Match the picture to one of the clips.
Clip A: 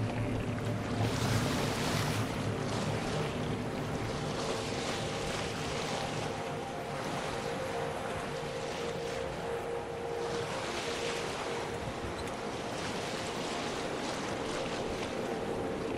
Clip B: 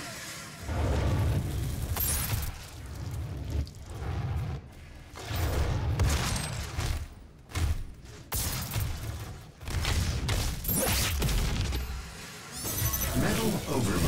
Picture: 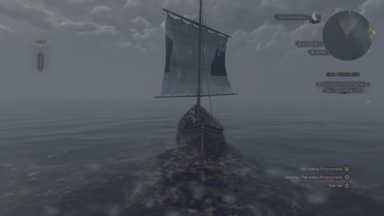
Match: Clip A